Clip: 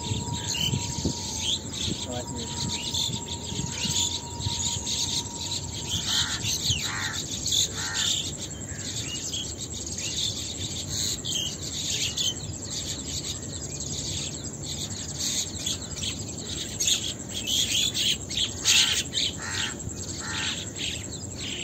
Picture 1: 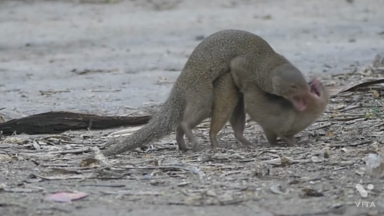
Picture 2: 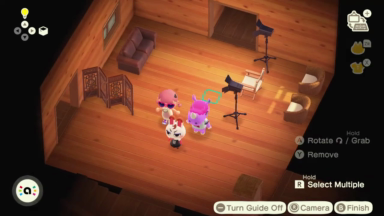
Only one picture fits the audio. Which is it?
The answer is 1